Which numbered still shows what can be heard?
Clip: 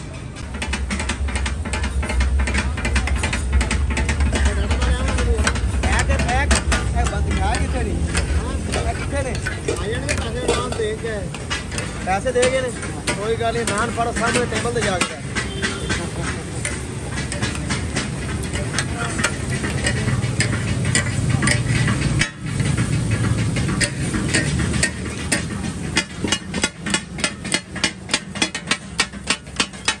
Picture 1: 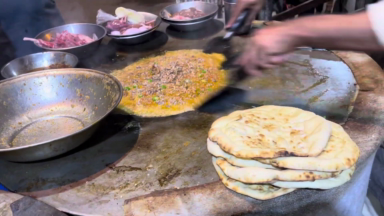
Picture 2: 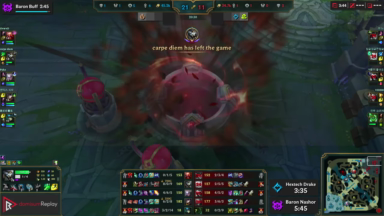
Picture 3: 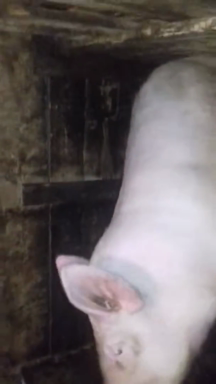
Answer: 1